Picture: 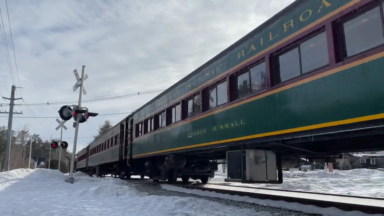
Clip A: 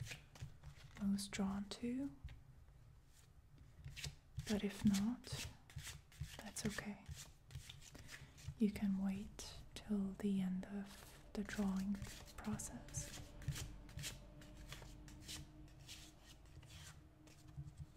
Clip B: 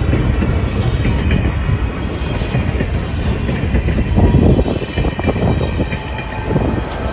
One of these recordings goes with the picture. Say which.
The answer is B